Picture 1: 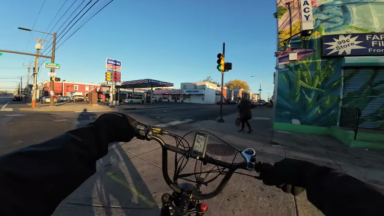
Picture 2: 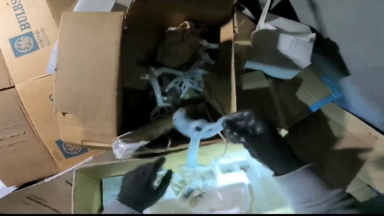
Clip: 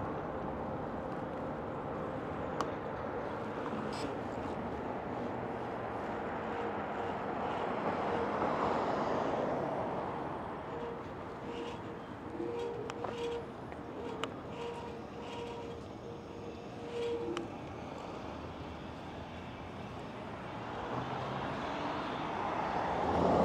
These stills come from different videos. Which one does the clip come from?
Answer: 1